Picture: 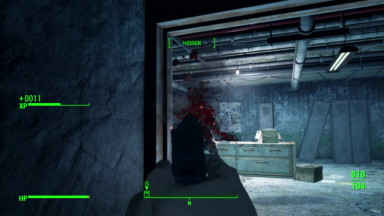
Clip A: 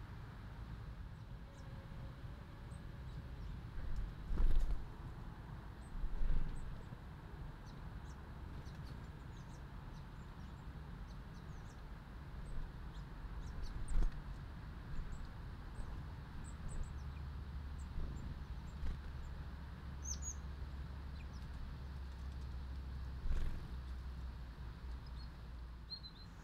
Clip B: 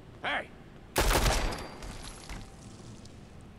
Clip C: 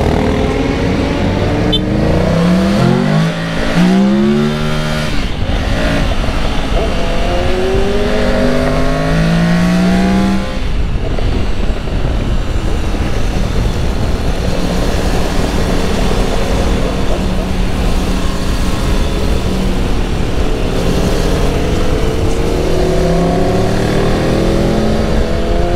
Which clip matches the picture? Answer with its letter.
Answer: B